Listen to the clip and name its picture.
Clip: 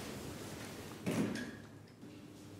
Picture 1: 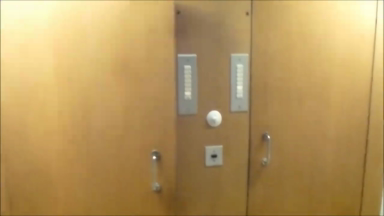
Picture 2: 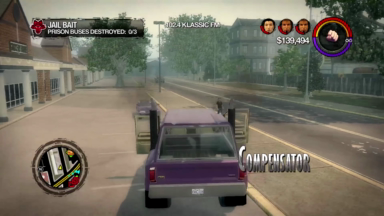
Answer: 1